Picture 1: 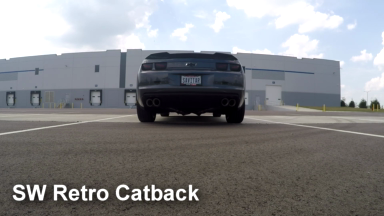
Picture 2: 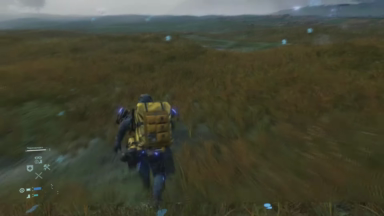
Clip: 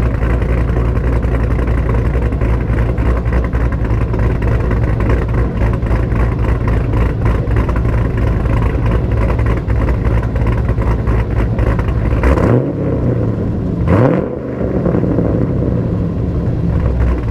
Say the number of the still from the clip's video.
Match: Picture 1